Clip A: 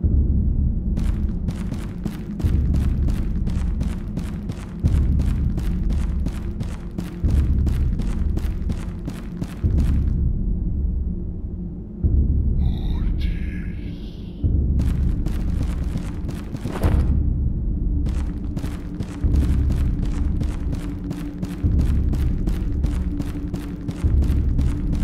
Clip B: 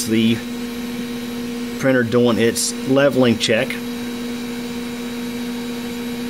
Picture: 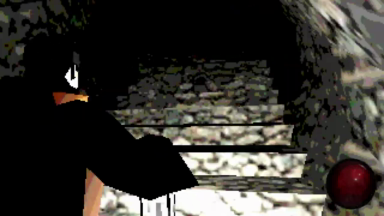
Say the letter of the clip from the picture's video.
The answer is A